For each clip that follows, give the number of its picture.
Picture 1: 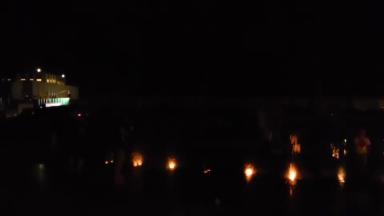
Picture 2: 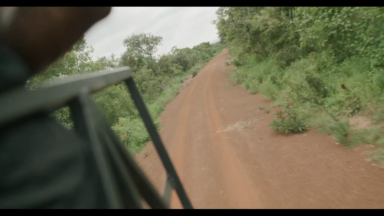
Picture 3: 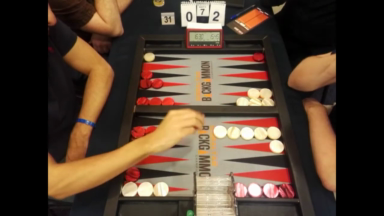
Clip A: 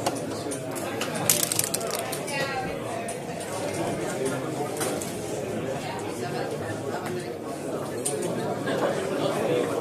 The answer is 3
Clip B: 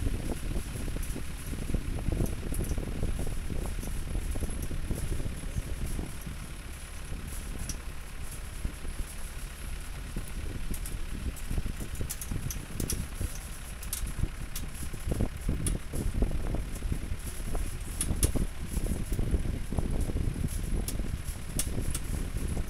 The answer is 2